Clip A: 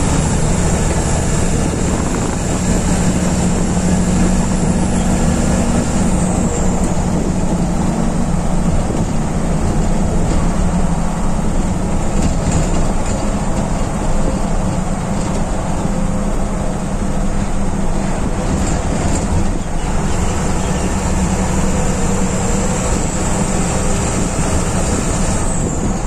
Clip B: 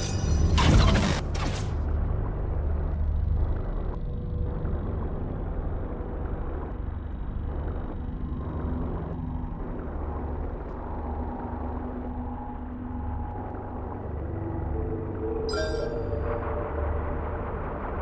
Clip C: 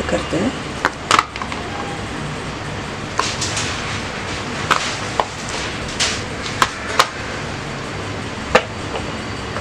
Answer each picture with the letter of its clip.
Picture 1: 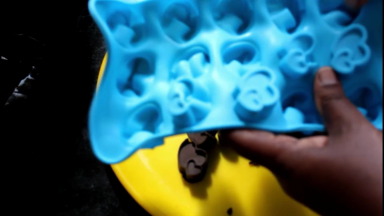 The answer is C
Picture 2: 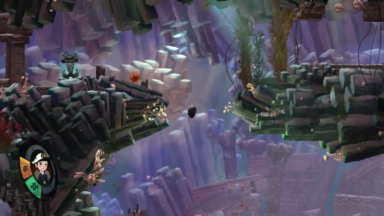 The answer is B